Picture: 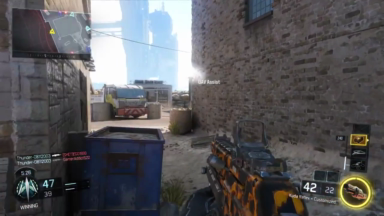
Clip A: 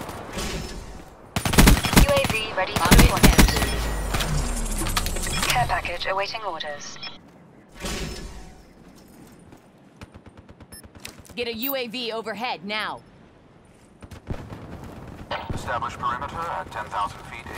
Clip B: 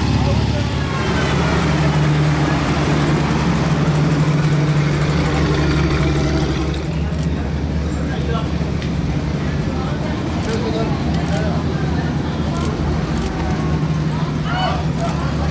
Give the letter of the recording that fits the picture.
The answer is A